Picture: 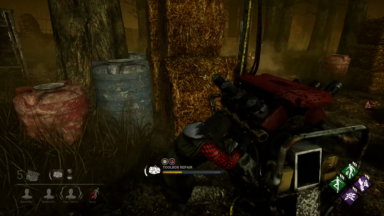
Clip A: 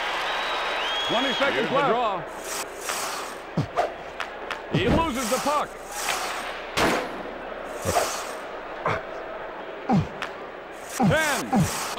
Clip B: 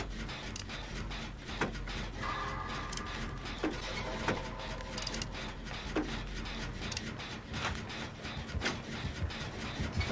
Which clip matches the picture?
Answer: B